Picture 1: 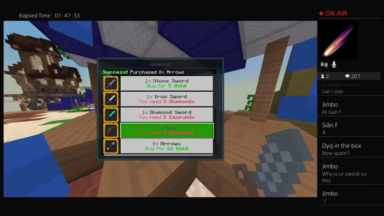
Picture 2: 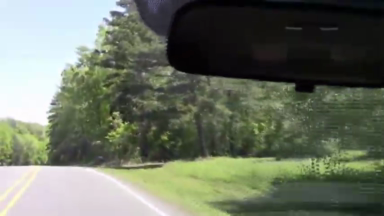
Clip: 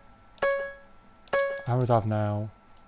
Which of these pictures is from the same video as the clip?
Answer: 1